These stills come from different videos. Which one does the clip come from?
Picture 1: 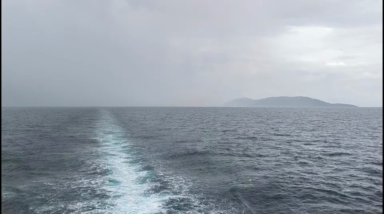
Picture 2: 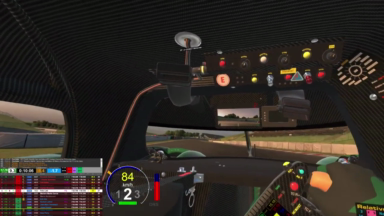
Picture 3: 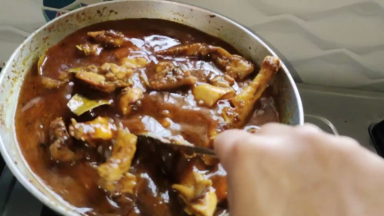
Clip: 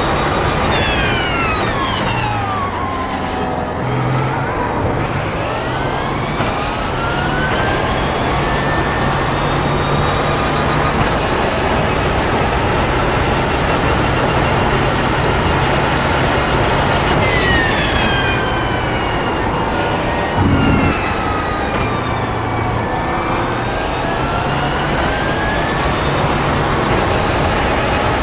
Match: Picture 2